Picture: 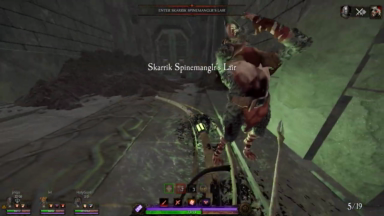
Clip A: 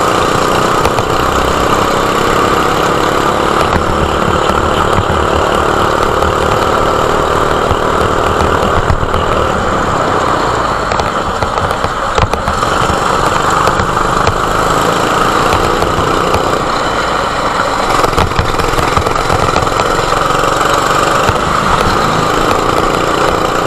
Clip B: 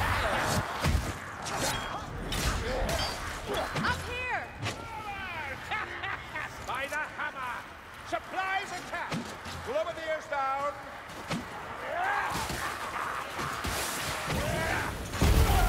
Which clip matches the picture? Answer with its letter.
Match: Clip B